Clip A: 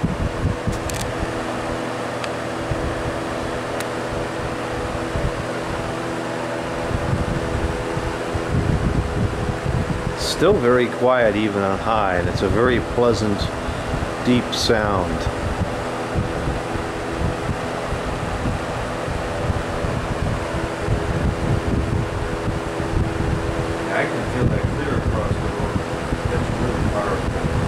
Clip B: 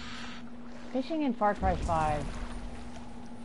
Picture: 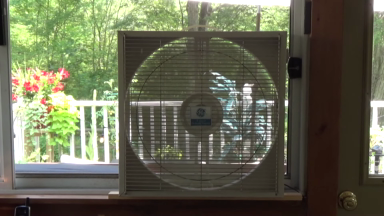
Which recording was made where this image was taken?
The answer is A